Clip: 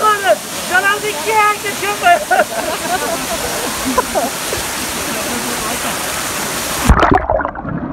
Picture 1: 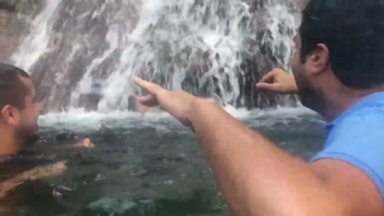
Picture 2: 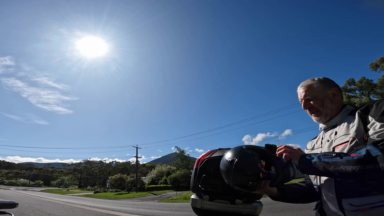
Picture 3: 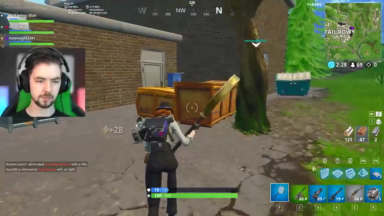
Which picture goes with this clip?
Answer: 1